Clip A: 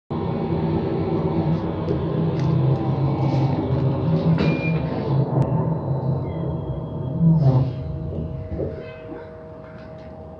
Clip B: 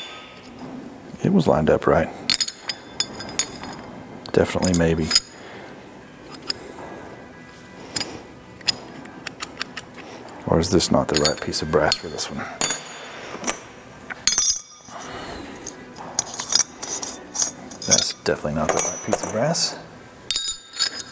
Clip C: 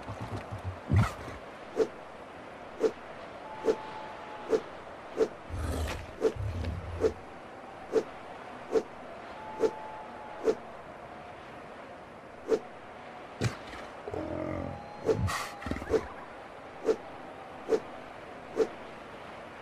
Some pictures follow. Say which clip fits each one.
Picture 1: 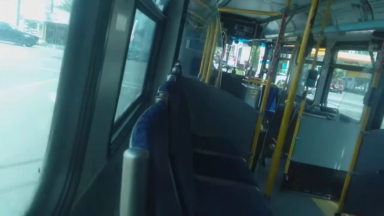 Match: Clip A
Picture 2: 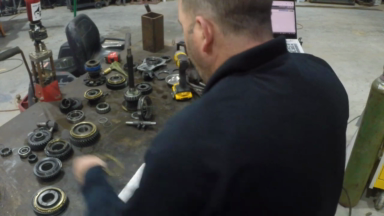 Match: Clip B